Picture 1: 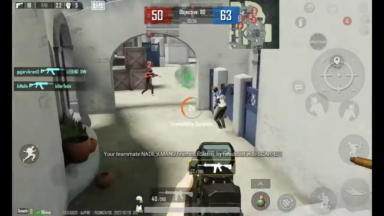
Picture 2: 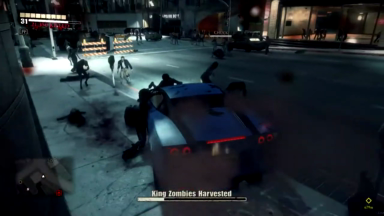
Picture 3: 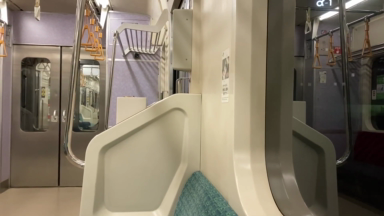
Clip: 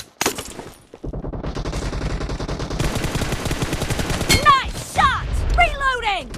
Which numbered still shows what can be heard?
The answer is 1